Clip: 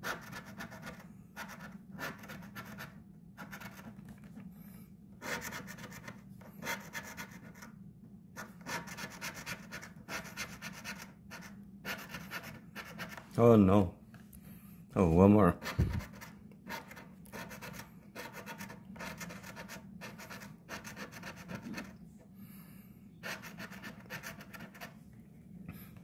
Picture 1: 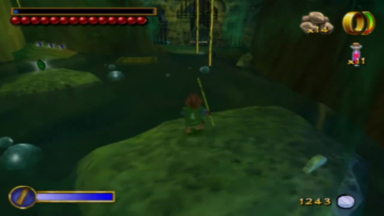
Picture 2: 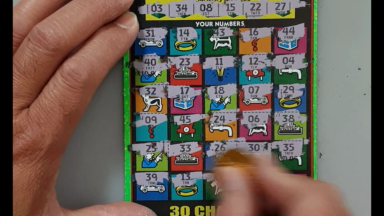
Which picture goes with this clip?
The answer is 2